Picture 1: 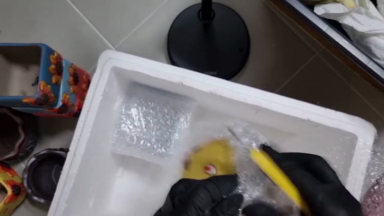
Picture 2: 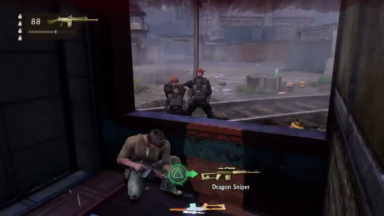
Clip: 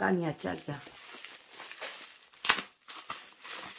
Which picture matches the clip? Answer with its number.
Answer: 1